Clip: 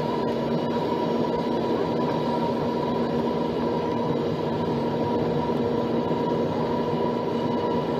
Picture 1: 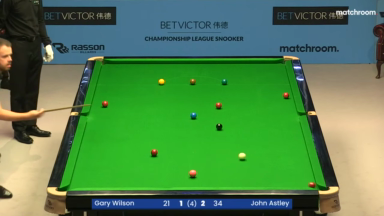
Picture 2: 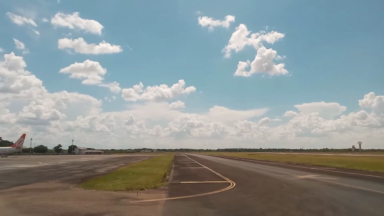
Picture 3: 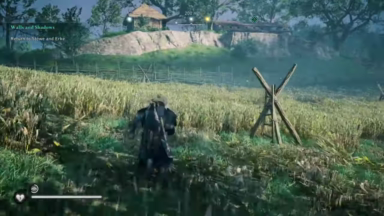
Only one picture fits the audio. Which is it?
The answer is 2